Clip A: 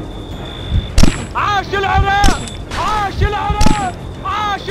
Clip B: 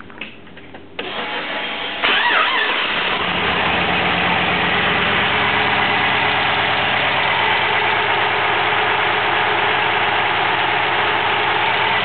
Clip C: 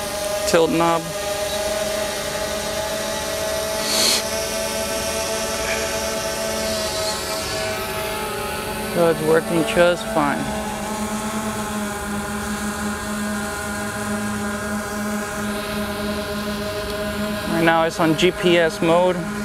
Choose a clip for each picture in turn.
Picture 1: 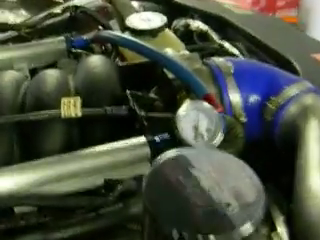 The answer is B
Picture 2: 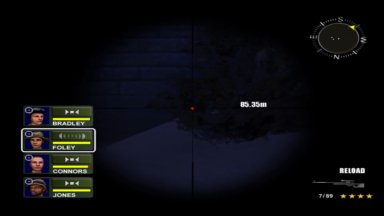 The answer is A